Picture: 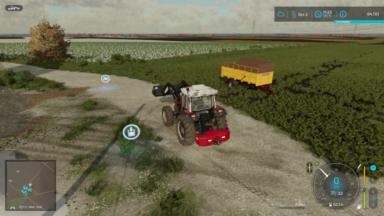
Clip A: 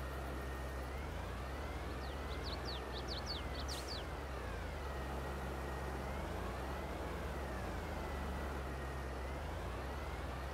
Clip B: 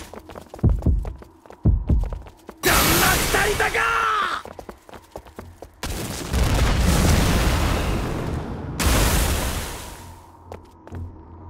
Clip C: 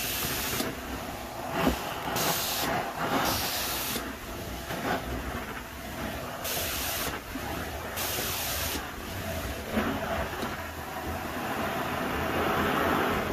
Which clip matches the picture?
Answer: A